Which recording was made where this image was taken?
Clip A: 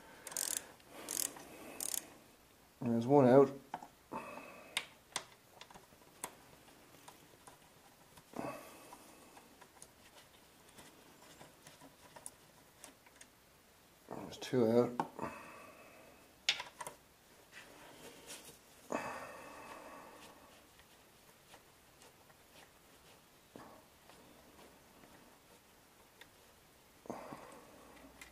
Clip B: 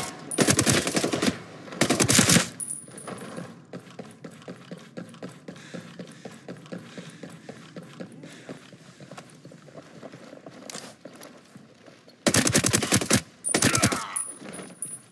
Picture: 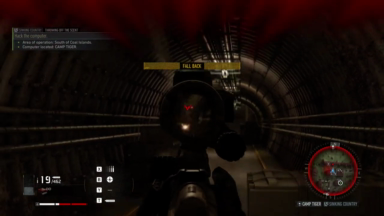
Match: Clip B